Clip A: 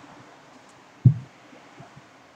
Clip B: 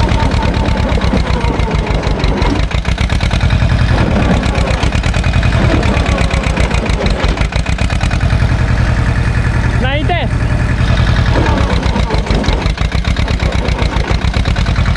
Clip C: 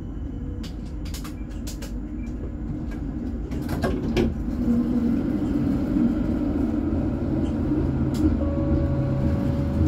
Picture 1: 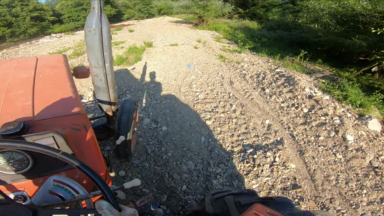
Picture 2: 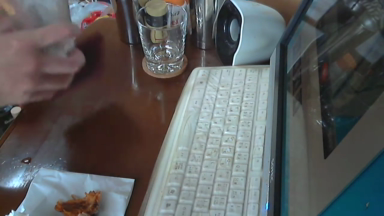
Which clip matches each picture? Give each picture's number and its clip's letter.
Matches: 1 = B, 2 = A